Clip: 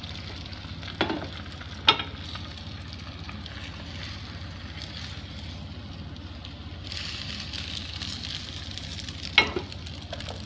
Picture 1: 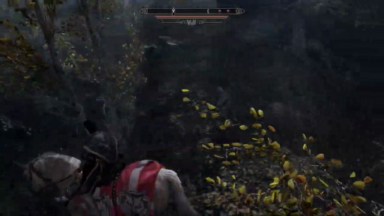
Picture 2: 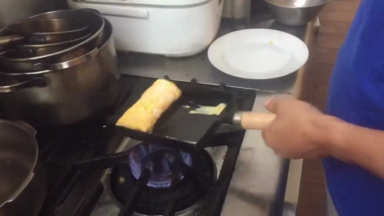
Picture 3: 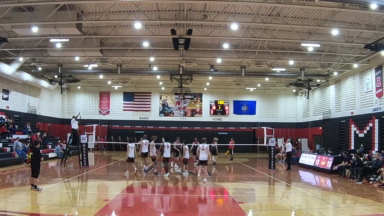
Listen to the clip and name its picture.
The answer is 2